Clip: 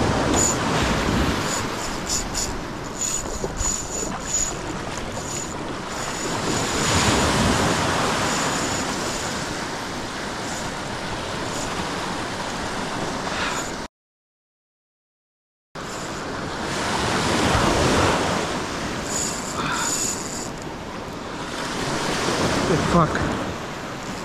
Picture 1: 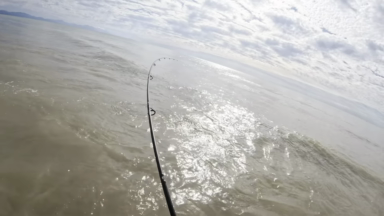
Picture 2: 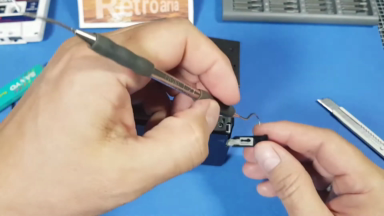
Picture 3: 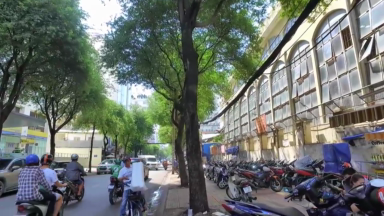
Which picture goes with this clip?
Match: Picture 1